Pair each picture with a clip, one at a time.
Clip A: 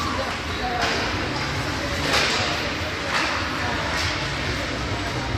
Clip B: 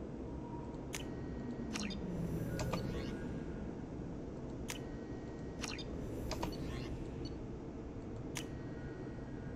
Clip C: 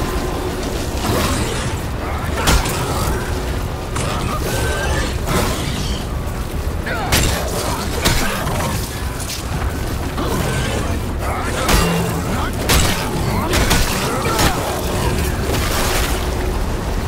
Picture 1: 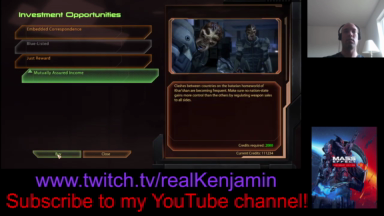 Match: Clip B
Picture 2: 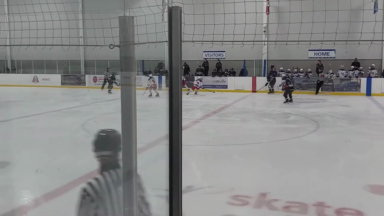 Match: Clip A